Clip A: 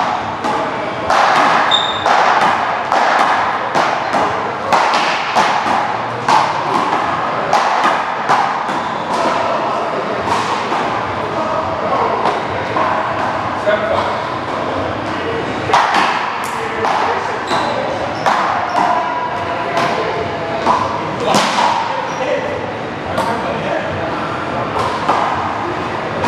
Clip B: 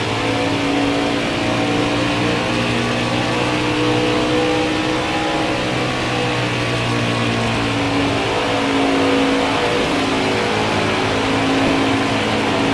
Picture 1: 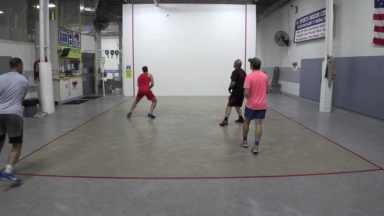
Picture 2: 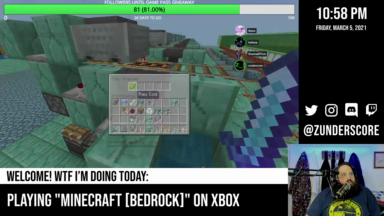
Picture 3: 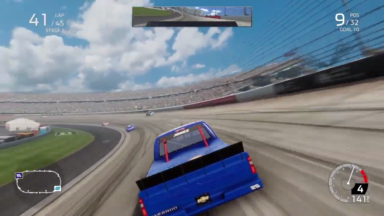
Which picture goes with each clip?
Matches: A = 1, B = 3